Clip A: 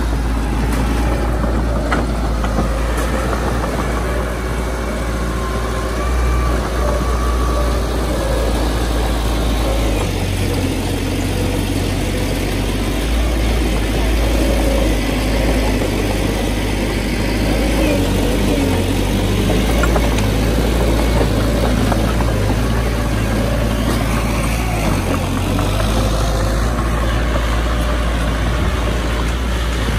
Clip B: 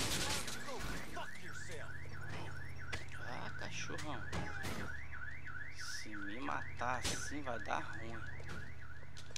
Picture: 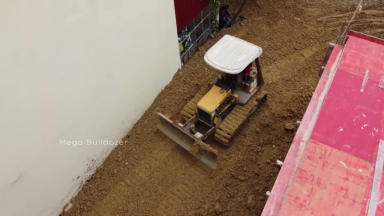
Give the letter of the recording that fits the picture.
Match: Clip A